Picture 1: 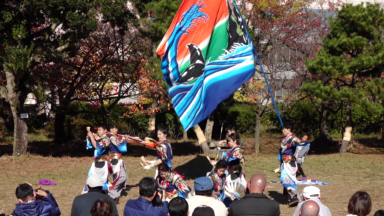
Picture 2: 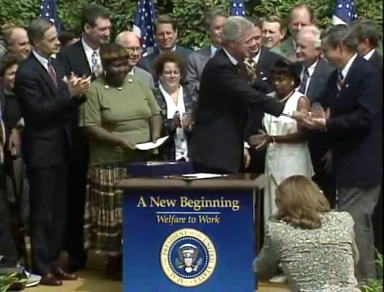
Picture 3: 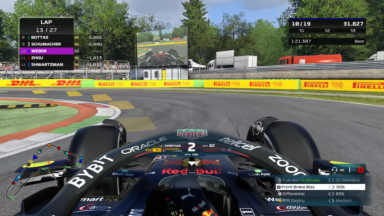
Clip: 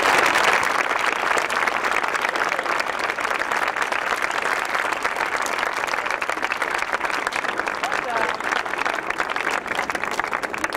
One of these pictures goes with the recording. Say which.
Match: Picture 2